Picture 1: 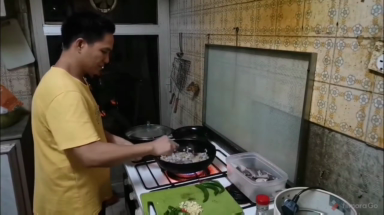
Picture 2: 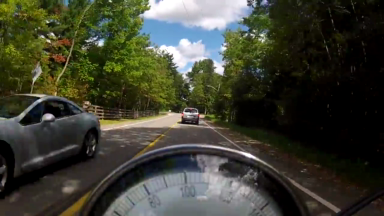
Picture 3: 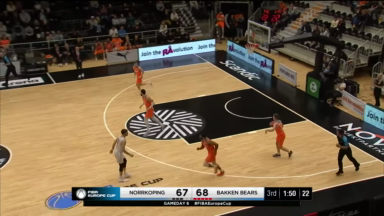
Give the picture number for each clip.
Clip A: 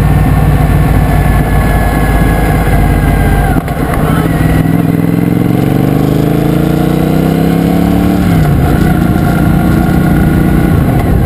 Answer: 2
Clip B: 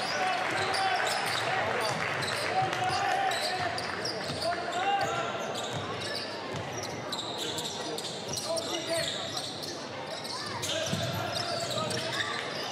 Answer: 3